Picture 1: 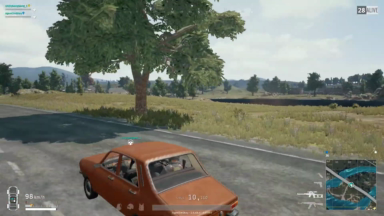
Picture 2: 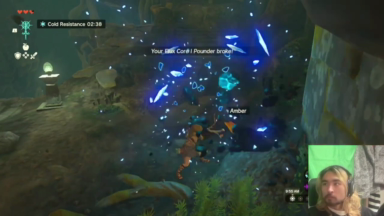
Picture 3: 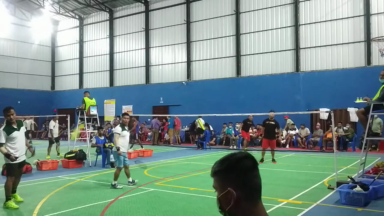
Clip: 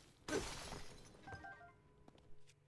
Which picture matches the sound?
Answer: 2